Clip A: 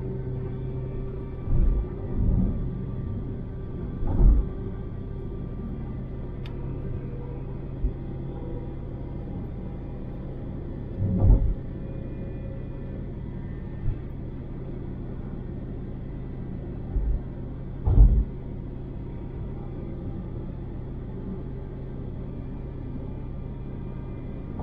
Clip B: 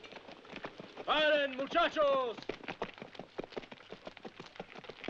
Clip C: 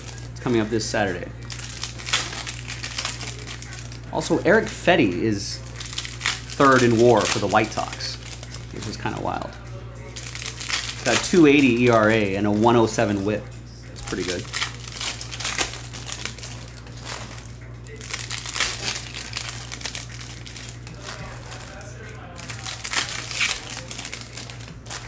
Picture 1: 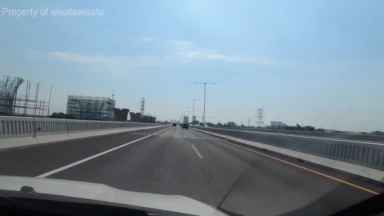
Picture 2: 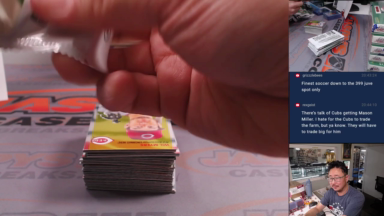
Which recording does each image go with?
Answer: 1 A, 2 C